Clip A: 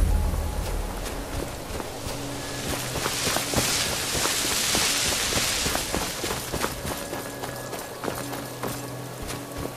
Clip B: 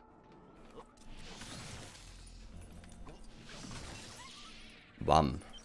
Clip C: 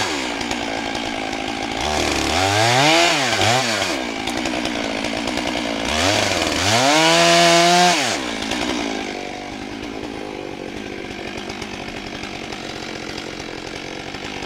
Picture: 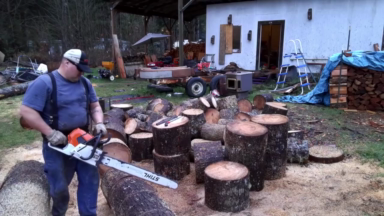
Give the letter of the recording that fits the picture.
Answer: C